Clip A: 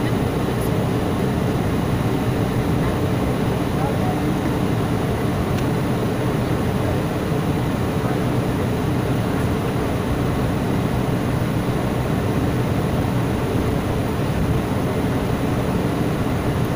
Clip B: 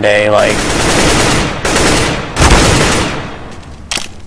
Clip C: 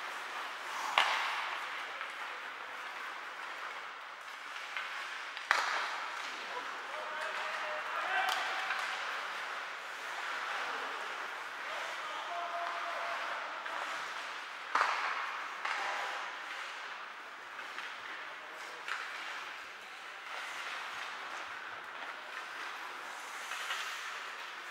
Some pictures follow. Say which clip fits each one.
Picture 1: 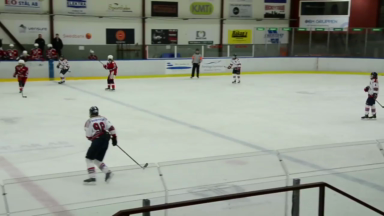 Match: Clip C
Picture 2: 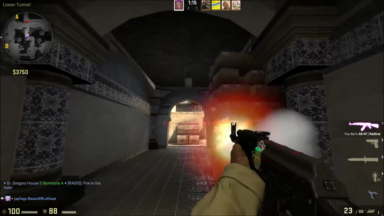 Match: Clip B